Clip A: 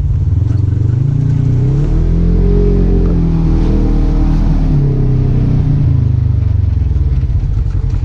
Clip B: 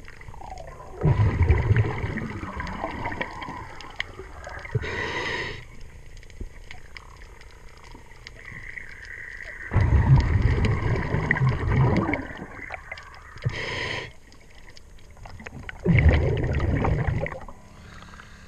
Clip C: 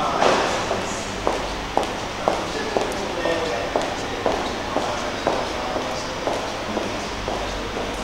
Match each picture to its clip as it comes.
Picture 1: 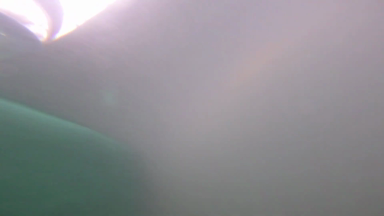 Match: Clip B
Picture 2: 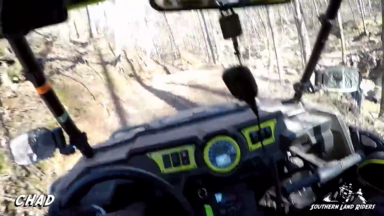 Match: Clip A